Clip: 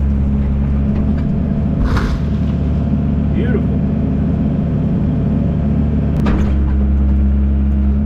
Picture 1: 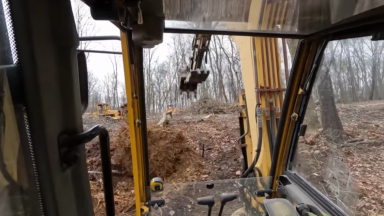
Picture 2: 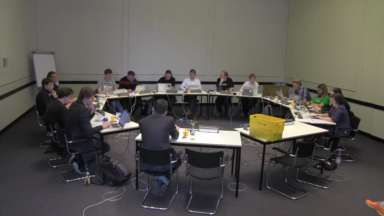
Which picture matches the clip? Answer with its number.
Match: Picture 1